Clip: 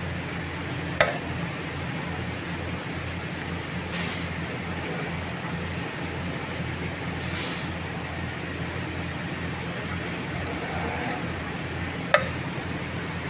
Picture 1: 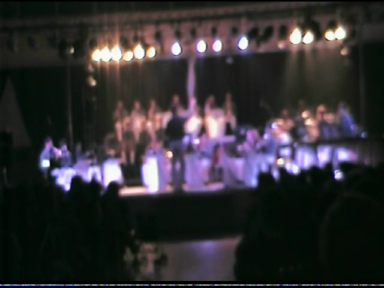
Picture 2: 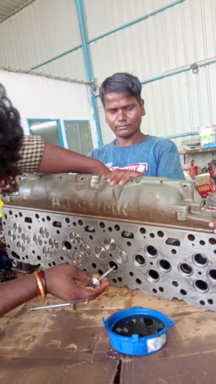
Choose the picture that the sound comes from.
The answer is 2